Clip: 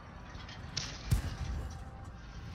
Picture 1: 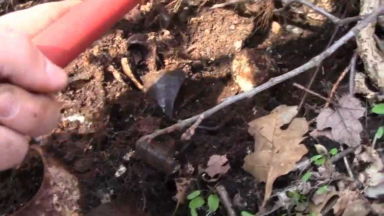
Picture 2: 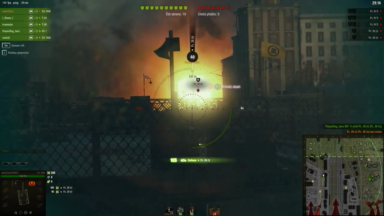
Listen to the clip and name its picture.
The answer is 2